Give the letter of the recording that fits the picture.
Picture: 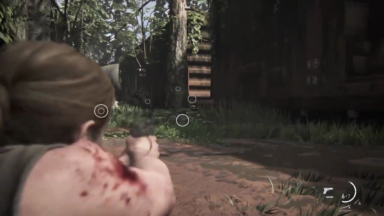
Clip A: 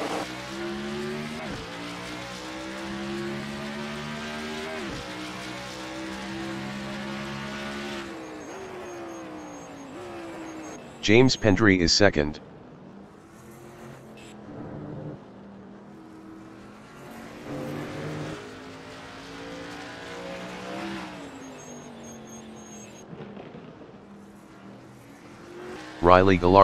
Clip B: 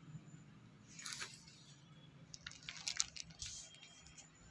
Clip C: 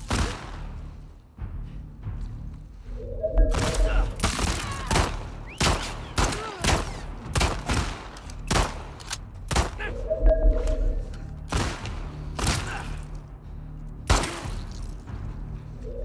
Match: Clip C